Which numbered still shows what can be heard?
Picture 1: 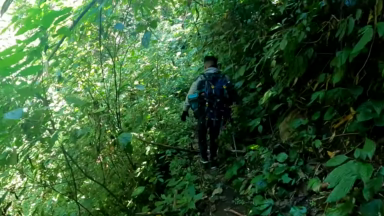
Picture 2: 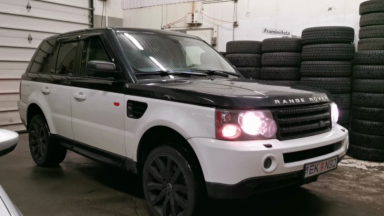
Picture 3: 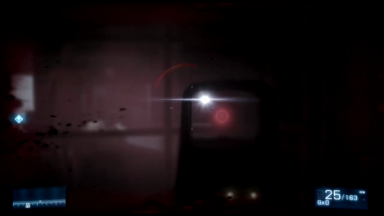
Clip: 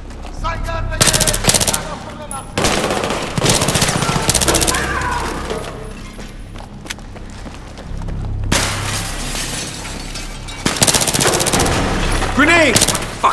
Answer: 3